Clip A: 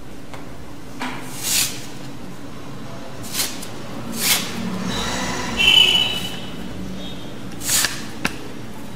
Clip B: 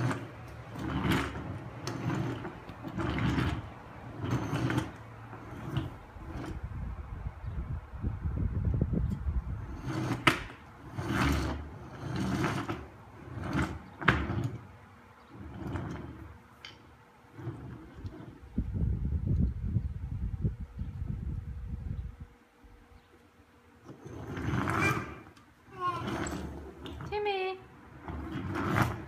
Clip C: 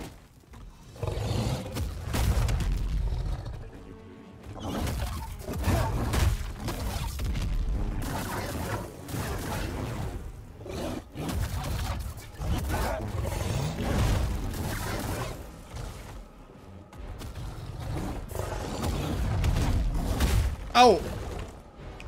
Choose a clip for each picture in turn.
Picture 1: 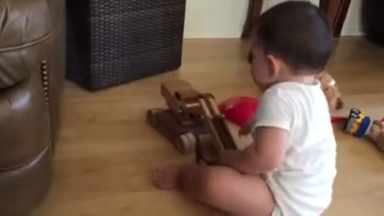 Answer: B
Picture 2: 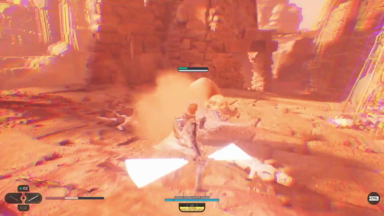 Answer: C